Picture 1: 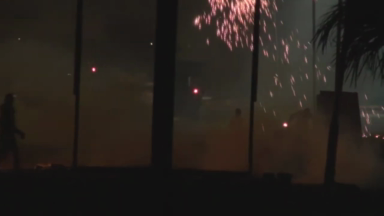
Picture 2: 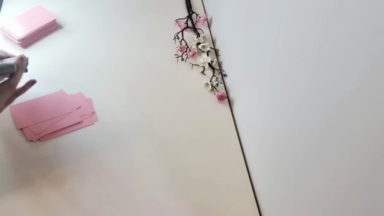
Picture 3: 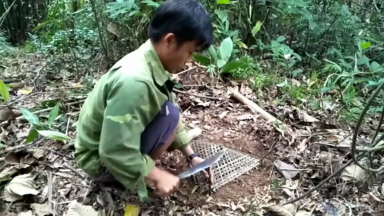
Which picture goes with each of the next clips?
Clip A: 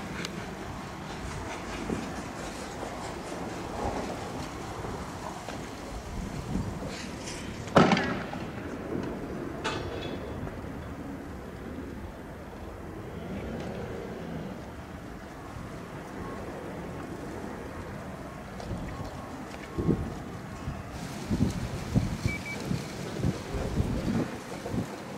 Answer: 1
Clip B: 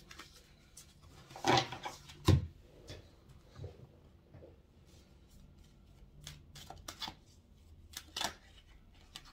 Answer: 2